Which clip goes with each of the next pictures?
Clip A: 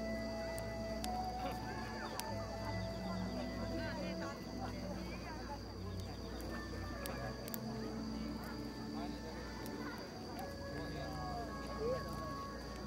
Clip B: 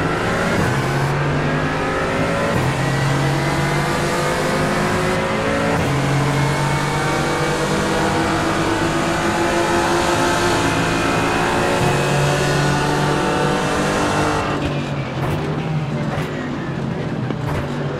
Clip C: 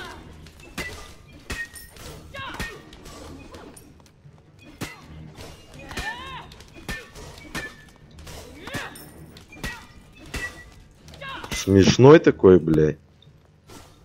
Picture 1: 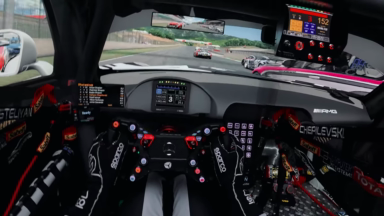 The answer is B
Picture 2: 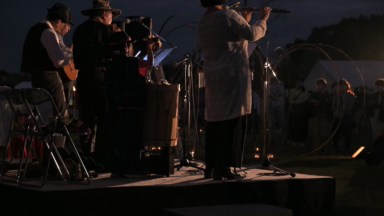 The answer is A